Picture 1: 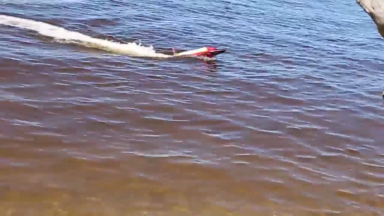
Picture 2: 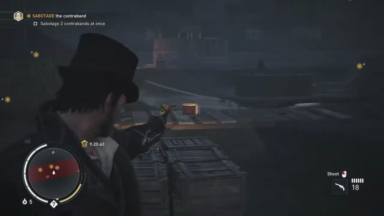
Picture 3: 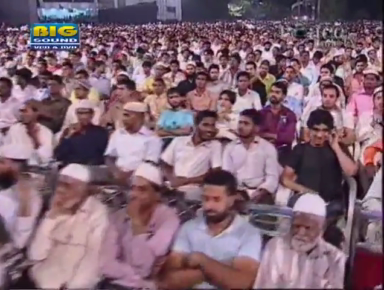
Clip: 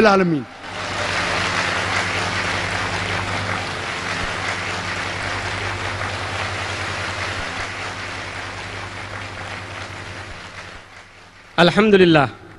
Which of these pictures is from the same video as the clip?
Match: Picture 3